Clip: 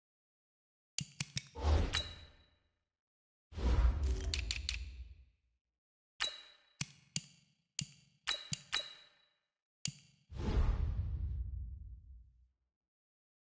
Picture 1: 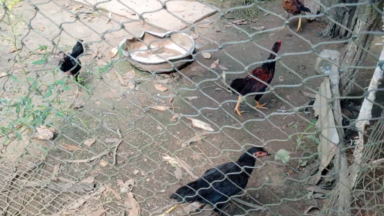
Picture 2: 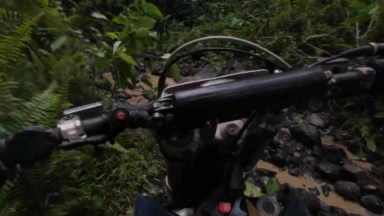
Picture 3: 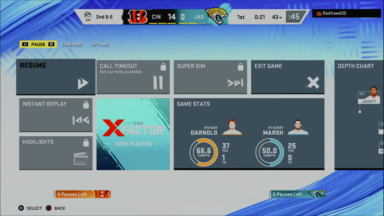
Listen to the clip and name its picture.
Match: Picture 3